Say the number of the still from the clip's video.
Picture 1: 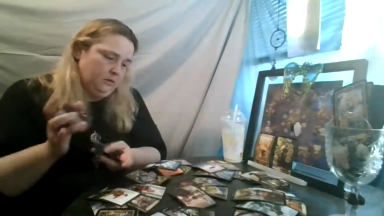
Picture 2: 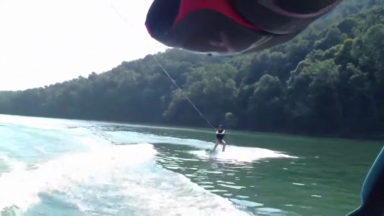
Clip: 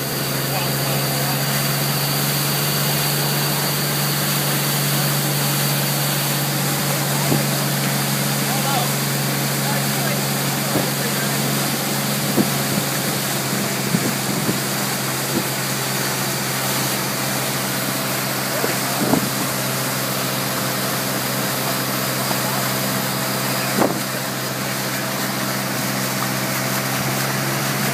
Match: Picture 2